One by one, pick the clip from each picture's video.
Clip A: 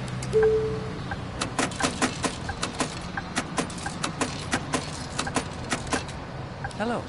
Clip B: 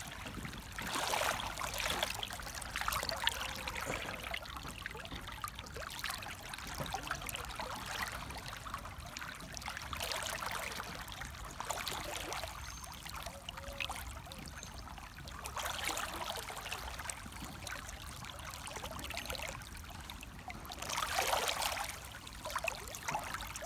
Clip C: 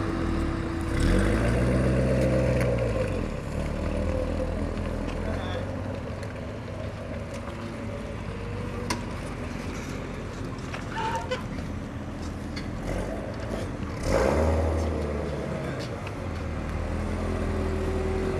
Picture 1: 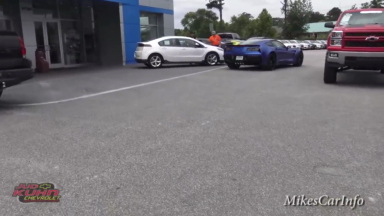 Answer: C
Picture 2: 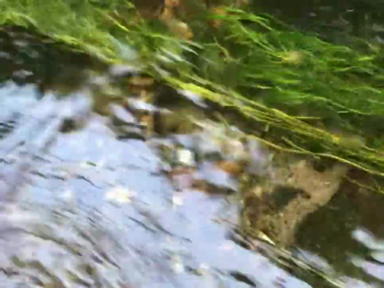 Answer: B